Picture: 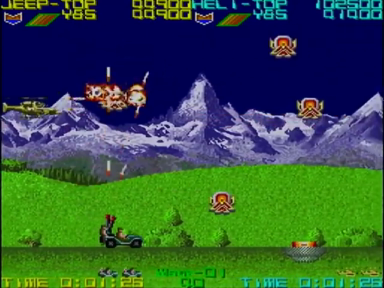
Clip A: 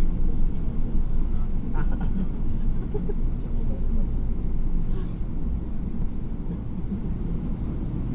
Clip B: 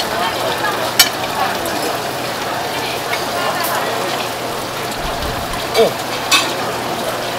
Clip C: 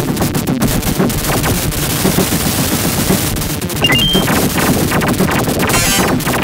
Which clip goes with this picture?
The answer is C